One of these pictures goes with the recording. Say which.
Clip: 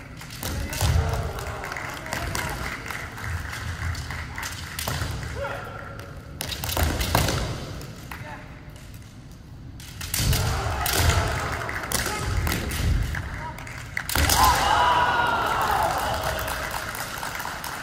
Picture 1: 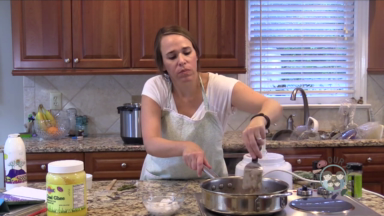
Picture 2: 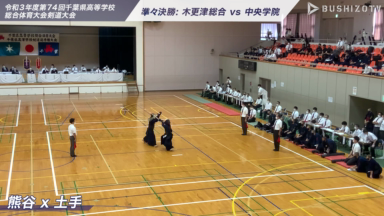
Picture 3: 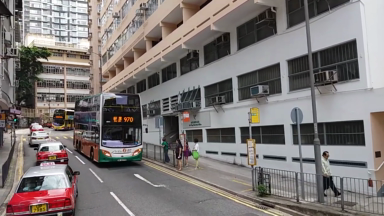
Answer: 2